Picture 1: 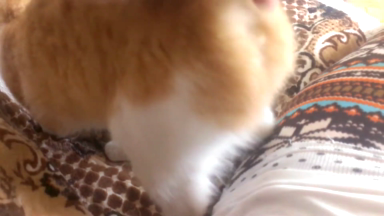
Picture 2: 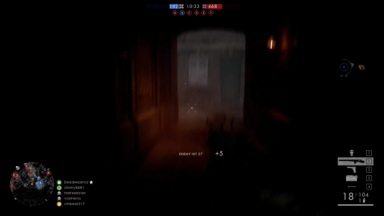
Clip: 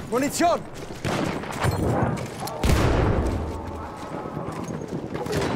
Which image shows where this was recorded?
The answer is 2